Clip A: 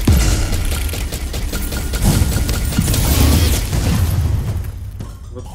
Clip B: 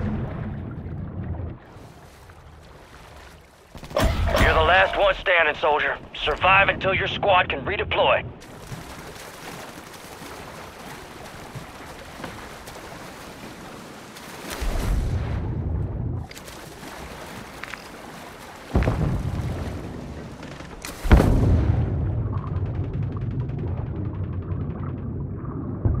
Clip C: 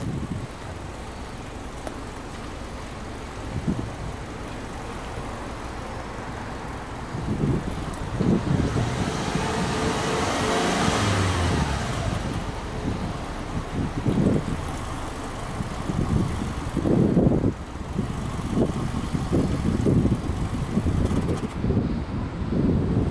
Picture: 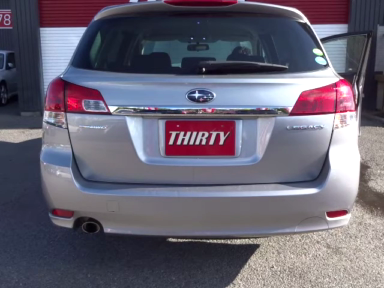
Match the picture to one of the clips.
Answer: C